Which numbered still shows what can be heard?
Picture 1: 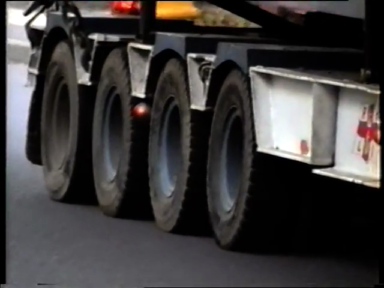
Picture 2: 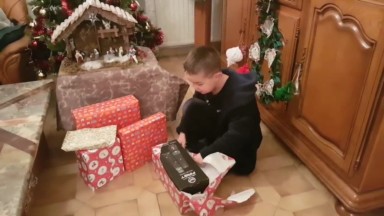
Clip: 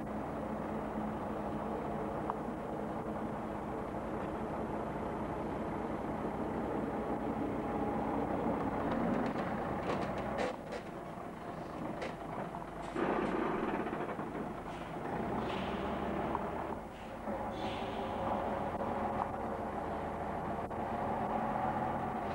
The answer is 1